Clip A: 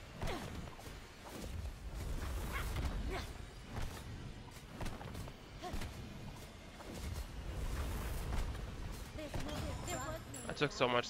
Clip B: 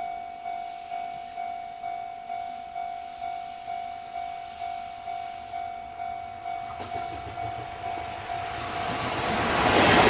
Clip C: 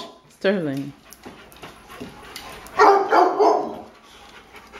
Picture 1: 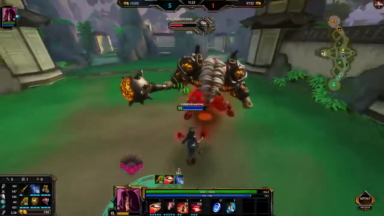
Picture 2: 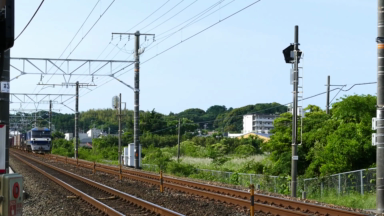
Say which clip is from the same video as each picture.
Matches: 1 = A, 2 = B